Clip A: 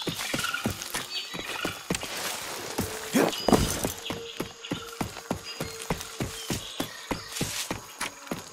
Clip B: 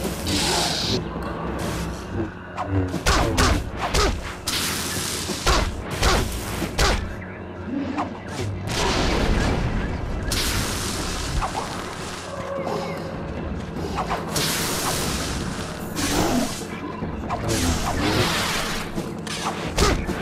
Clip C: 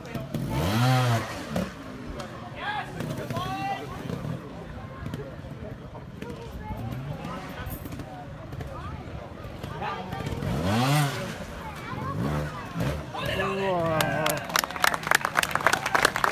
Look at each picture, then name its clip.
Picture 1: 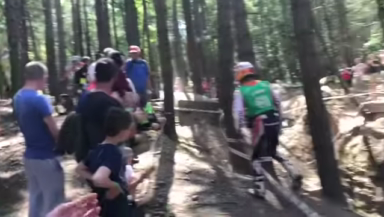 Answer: C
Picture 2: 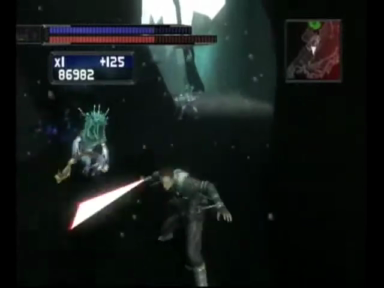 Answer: B